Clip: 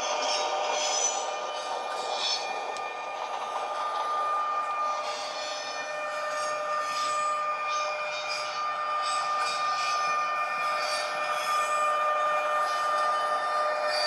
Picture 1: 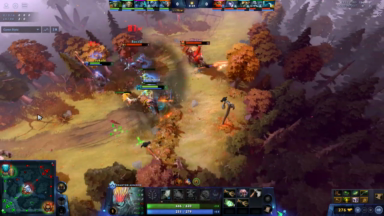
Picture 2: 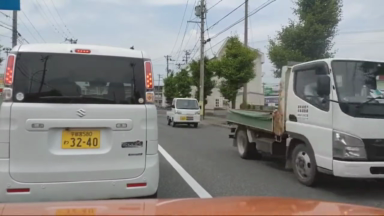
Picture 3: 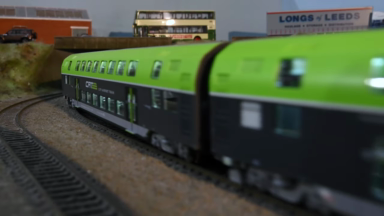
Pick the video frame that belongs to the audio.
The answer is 3